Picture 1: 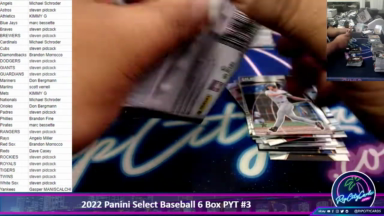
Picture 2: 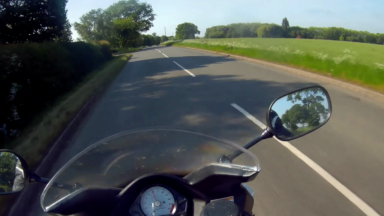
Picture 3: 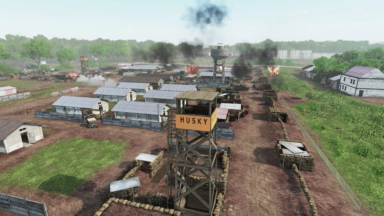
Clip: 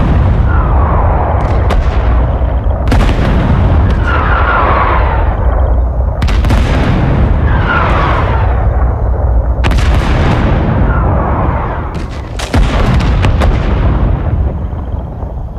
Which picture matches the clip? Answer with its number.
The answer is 3